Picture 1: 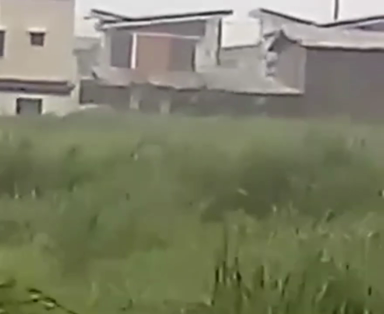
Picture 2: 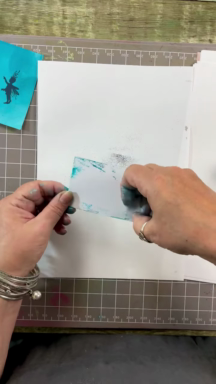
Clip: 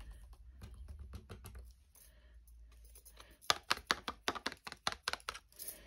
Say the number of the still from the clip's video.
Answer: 2